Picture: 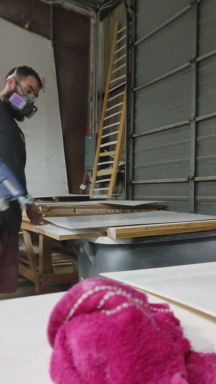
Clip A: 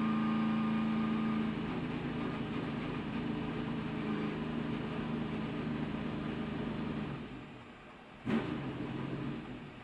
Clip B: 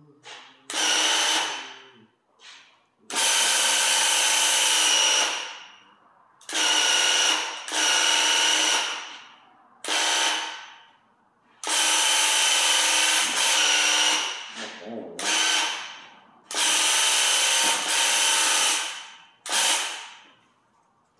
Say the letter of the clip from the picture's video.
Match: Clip B